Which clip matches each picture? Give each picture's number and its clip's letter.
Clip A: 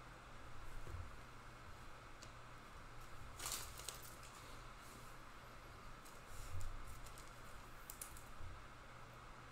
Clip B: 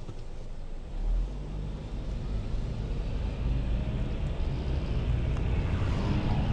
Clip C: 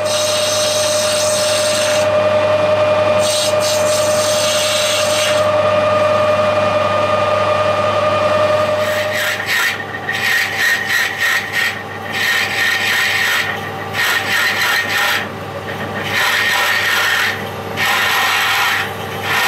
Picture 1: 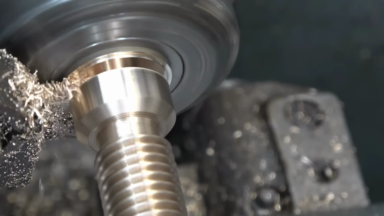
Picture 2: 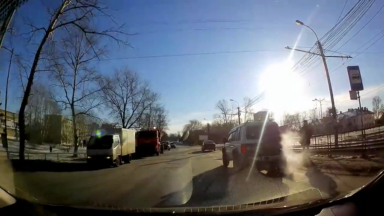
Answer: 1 C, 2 B